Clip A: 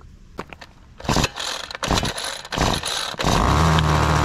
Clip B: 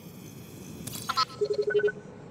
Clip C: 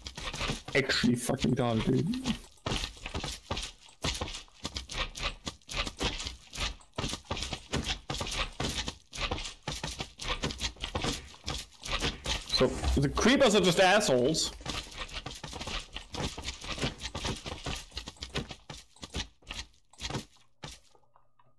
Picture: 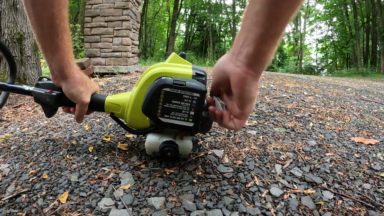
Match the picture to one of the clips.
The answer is A